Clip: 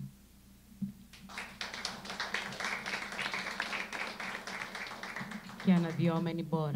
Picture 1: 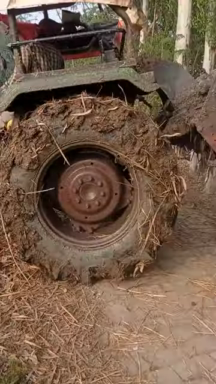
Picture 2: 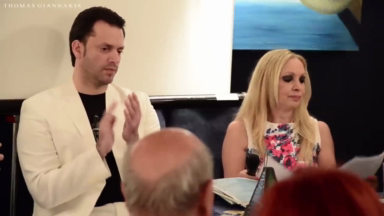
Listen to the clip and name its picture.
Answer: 2